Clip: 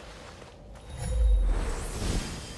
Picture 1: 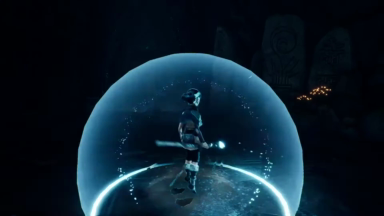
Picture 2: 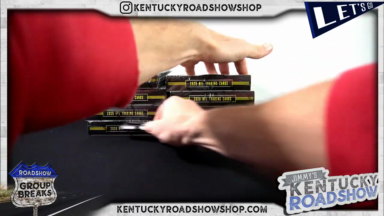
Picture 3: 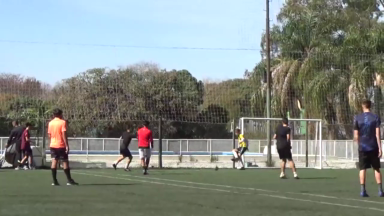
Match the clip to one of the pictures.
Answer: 1